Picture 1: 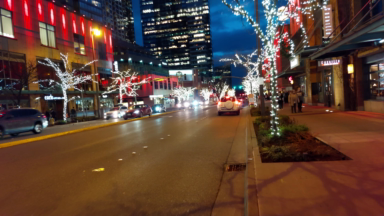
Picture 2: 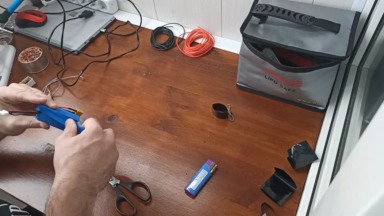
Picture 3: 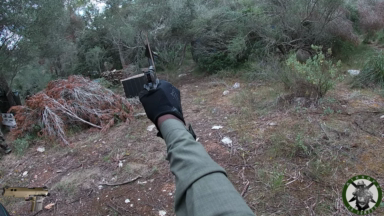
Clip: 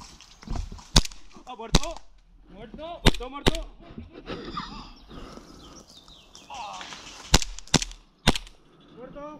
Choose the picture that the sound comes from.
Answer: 3